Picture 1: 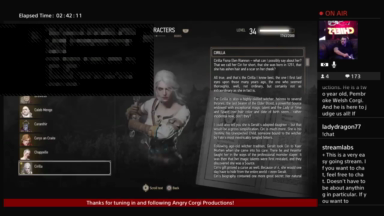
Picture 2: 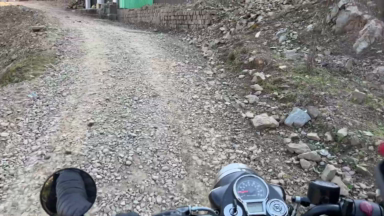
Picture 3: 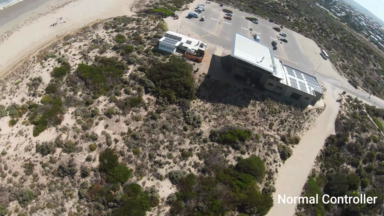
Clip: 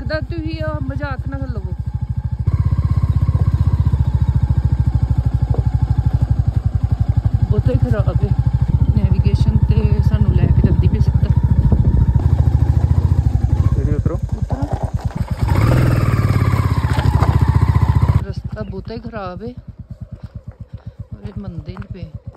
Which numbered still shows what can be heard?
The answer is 2